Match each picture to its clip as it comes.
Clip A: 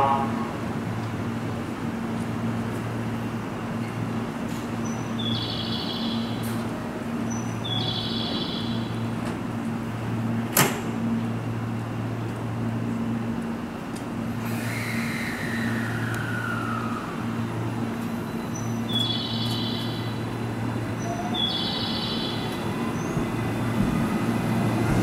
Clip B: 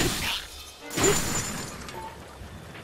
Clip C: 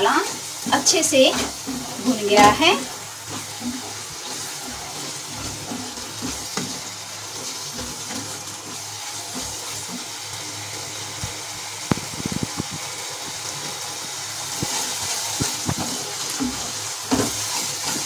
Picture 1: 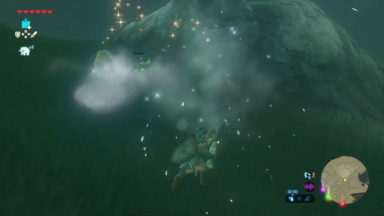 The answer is B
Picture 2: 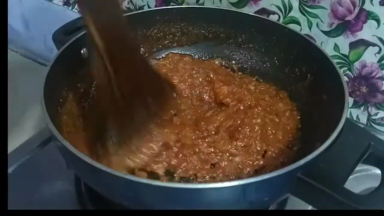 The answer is C